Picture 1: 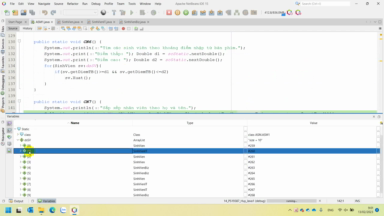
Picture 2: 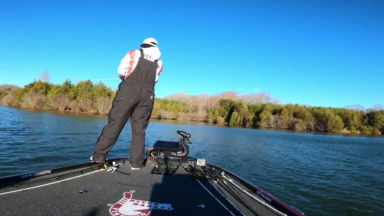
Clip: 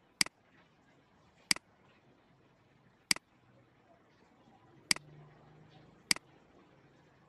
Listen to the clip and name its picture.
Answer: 1